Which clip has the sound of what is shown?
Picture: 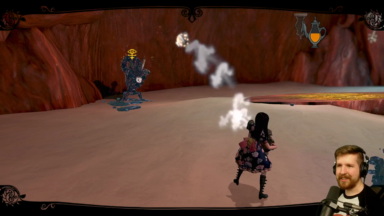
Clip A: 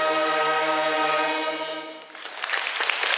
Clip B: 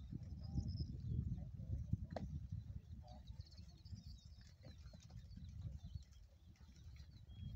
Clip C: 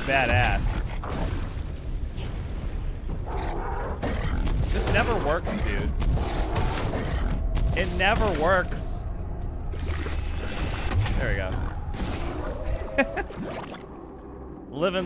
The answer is C